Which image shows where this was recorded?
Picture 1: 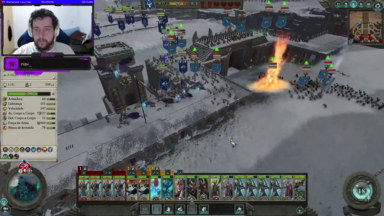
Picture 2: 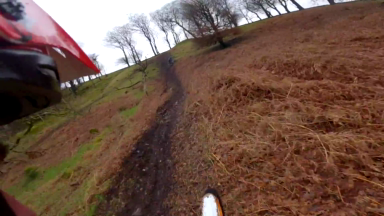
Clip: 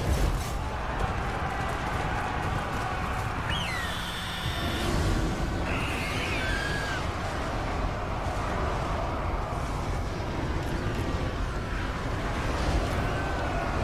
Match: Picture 1